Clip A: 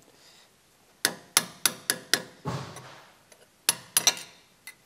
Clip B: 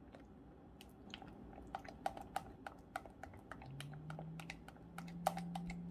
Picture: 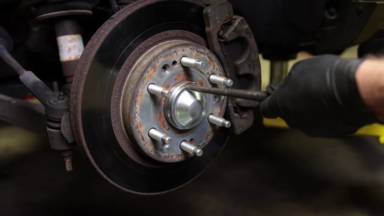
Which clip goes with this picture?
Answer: A